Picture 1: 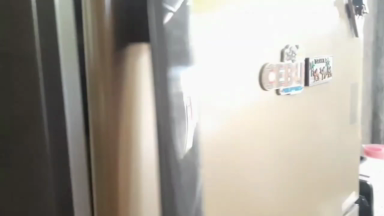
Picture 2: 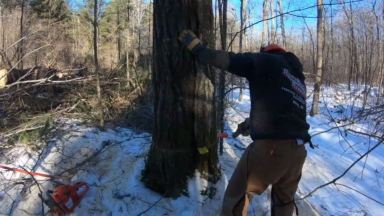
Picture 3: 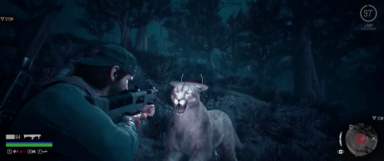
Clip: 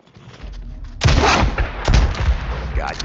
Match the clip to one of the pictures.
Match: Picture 3